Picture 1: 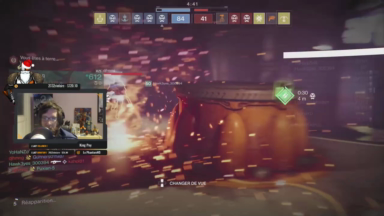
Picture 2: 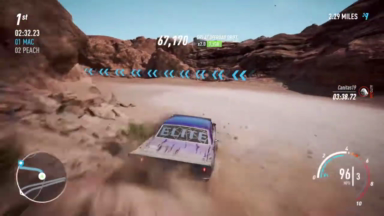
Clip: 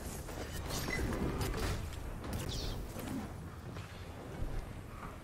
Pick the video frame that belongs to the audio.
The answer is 1